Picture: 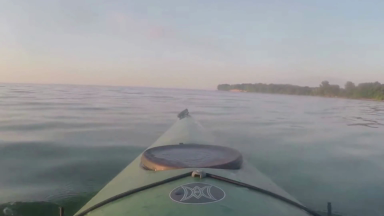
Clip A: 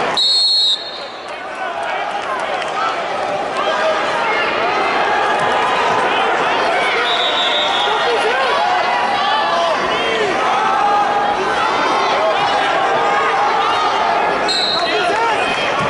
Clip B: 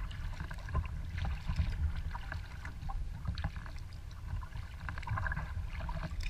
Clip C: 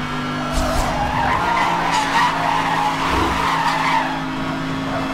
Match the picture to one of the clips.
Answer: B